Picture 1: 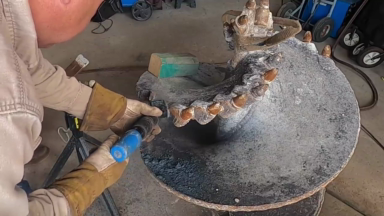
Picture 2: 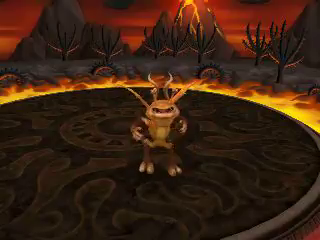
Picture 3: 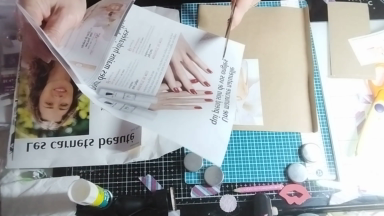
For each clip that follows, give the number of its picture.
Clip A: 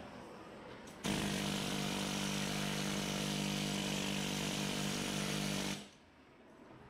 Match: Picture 1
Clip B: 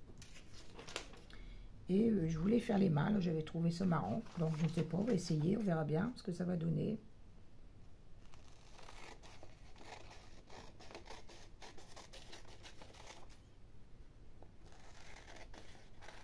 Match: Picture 3